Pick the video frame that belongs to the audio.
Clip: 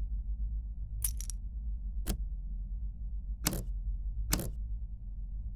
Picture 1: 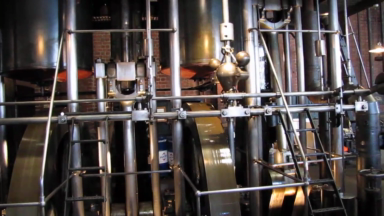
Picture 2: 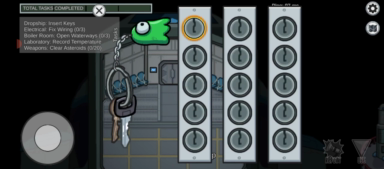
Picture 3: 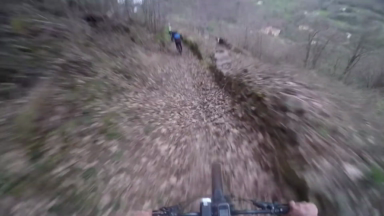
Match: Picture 2